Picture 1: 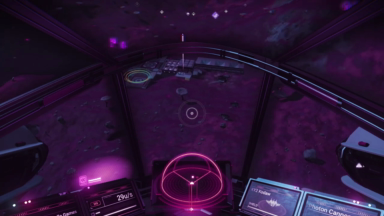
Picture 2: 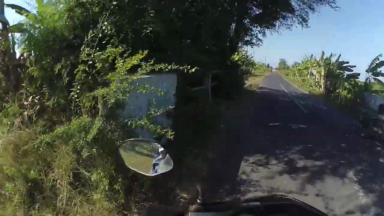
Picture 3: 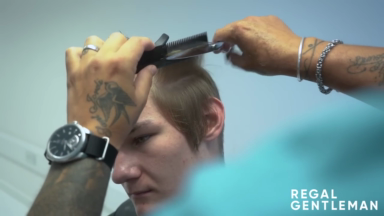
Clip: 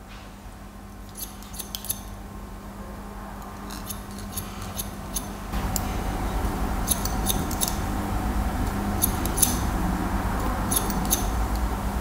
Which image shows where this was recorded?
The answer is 3